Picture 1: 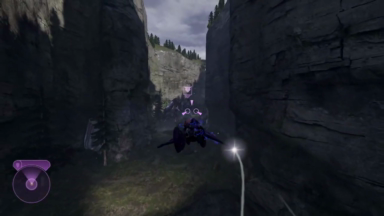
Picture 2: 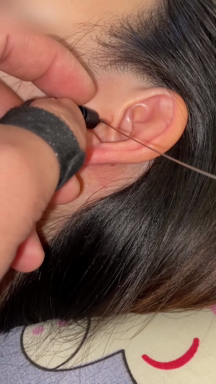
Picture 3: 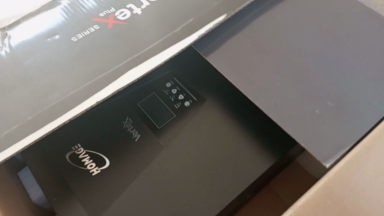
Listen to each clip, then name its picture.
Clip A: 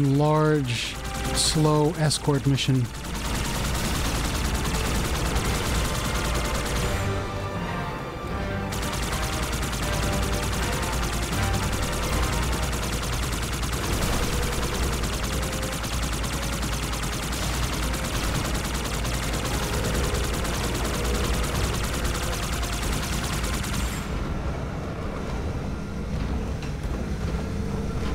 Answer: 1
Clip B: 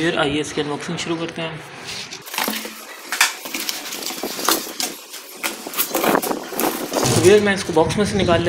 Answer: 3